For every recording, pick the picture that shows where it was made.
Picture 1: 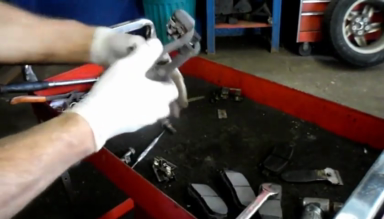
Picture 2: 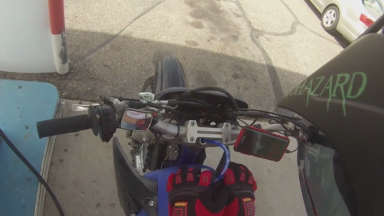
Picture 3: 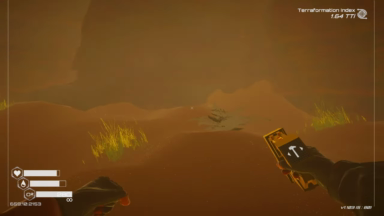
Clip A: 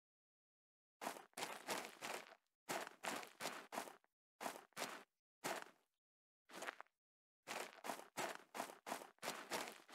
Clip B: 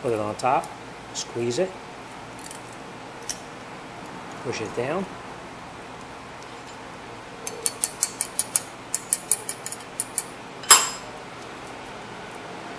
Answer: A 3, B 1